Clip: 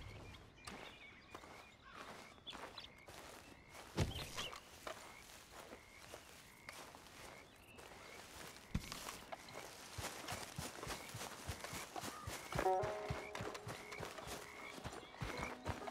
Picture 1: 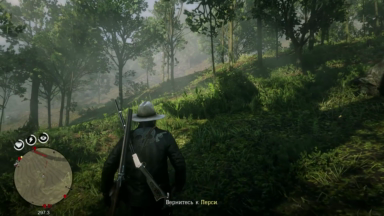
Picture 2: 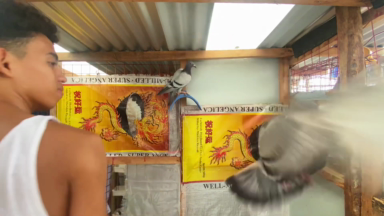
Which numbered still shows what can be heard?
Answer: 1